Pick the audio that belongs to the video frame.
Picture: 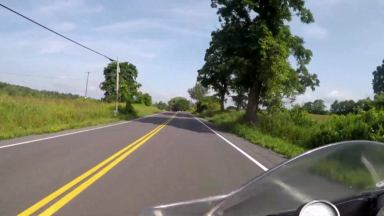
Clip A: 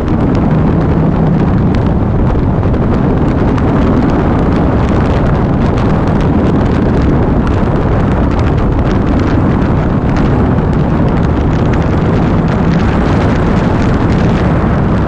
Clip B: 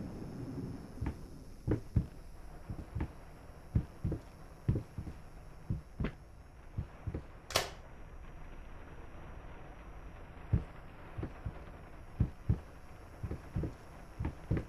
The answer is A